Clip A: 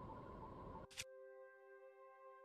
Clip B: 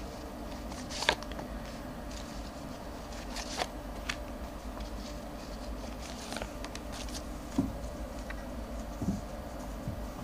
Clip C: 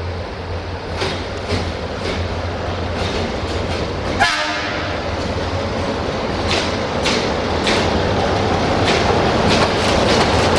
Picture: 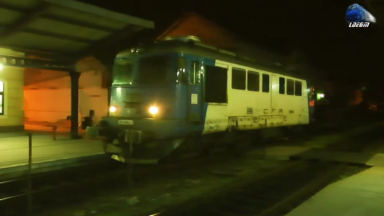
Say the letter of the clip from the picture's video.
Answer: C